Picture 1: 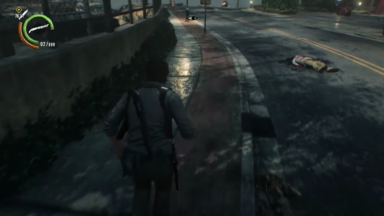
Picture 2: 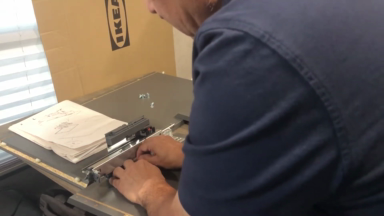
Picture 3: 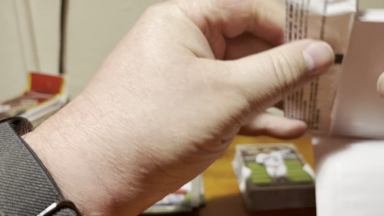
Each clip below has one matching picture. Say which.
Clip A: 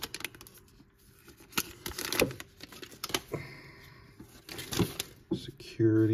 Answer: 3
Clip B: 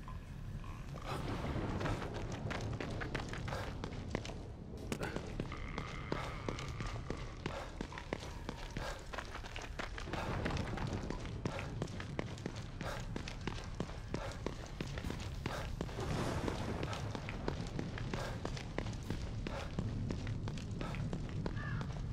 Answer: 1